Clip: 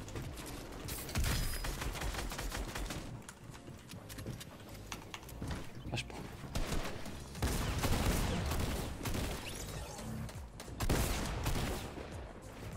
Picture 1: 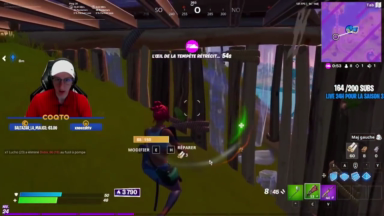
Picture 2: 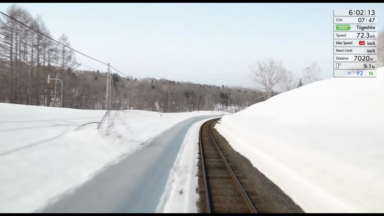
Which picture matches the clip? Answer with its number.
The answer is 1